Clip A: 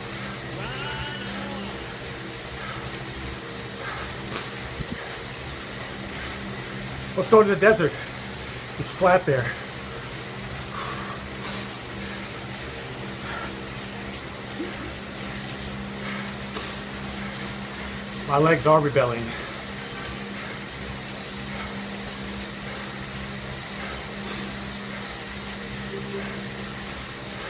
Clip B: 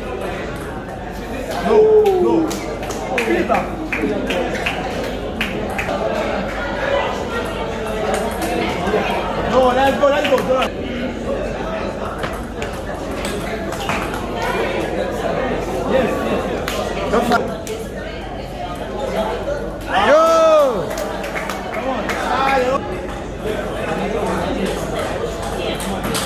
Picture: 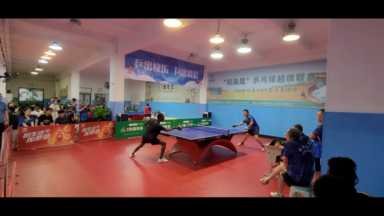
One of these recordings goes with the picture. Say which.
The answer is B